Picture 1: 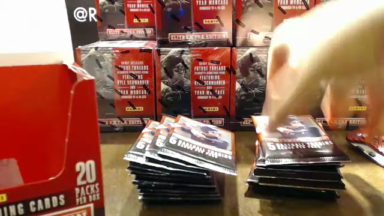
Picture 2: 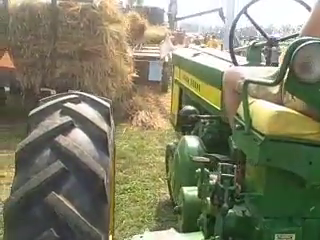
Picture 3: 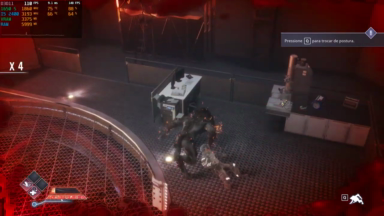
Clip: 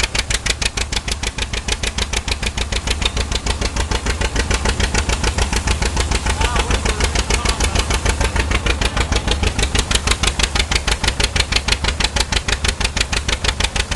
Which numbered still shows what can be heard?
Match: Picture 2